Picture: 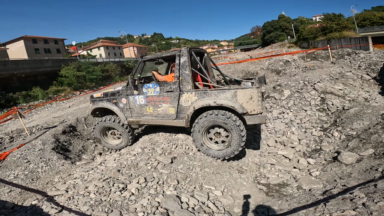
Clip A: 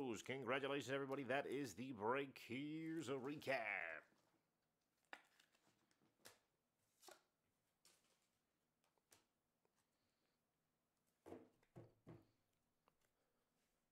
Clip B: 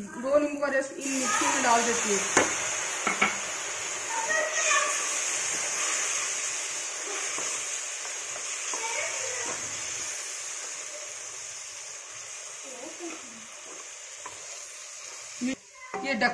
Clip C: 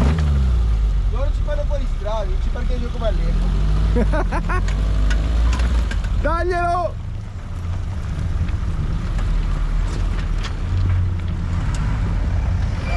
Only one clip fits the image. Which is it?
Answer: C